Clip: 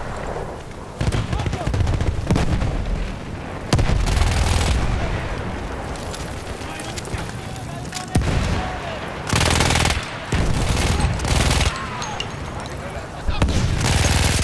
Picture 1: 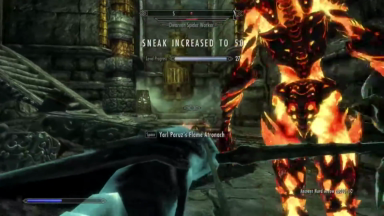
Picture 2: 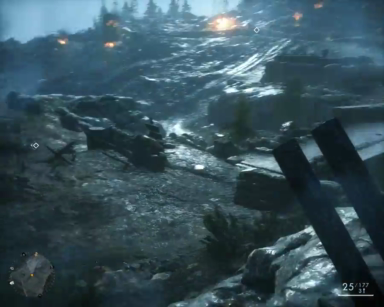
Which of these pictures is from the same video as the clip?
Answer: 2